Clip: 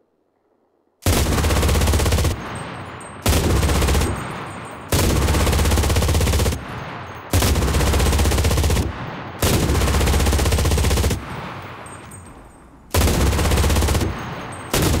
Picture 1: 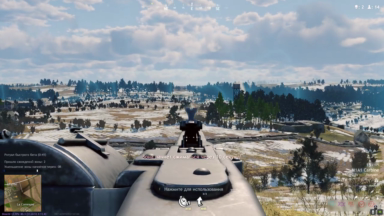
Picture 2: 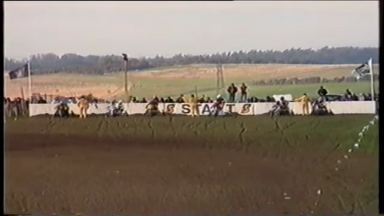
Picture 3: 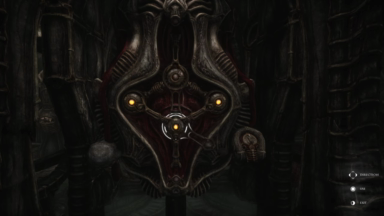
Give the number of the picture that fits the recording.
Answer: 1